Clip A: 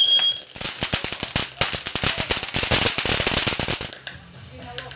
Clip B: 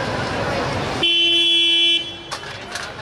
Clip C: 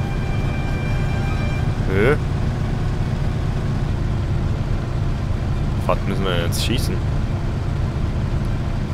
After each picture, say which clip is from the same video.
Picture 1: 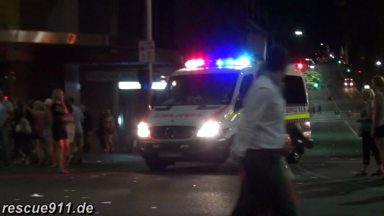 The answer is B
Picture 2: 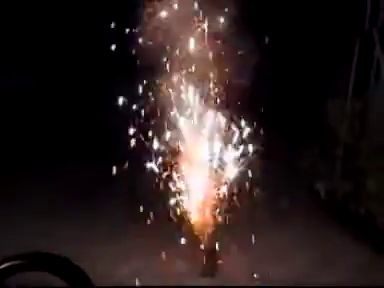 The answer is A